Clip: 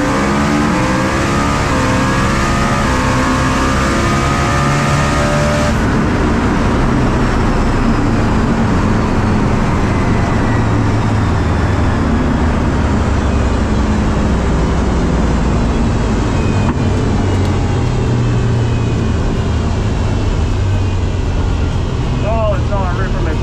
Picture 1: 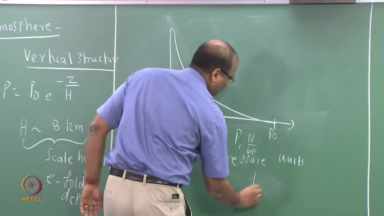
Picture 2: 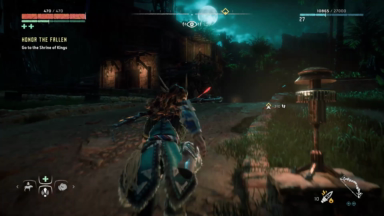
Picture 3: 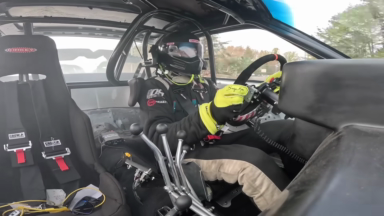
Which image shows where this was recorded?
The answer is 3